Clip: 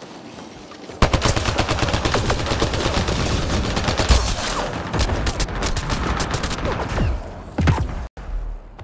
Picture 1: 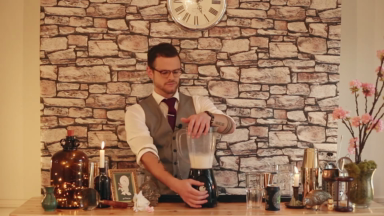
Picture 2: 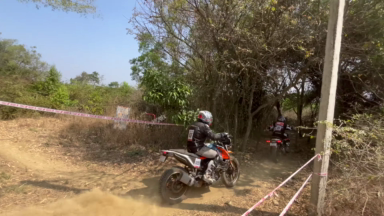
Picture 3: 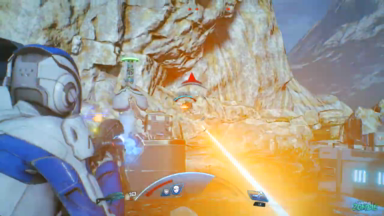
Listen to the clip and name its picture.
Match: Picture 3